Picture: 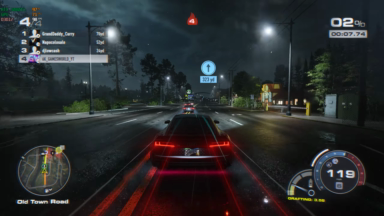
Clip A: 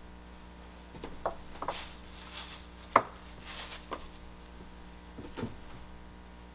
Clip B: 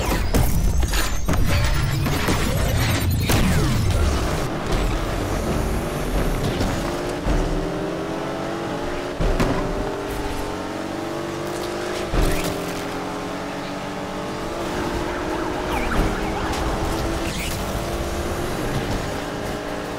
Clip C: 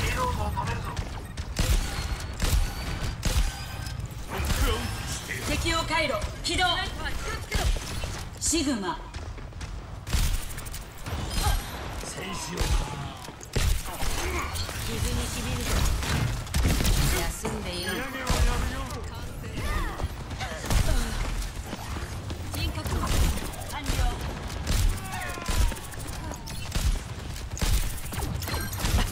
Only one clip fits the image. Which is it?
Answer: B